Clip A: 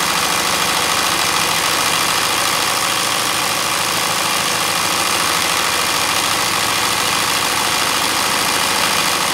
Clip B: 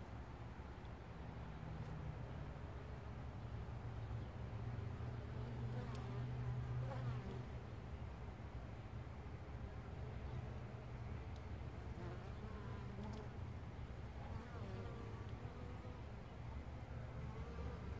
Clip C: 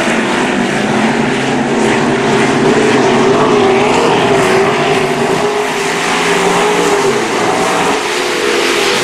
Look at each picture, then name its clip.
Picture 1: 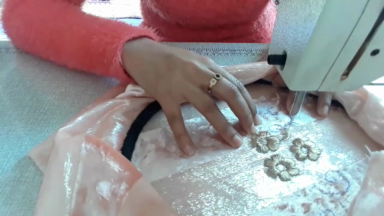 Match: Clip A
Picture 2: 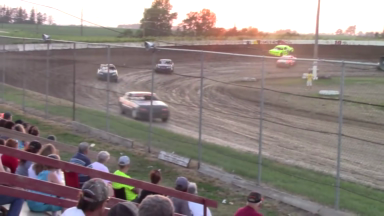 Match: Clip C